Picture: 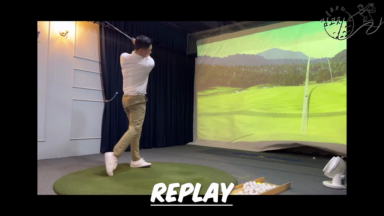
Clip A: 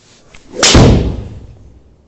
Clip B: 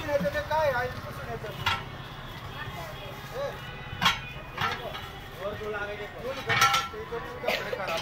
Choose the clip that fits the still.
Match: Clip A